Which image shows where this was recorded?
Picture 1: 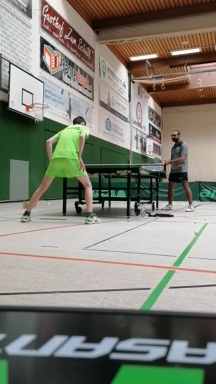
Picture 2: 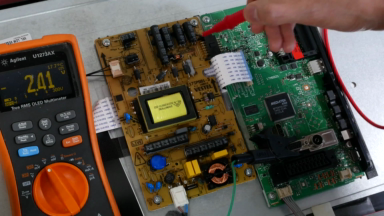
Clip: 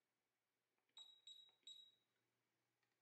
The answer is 2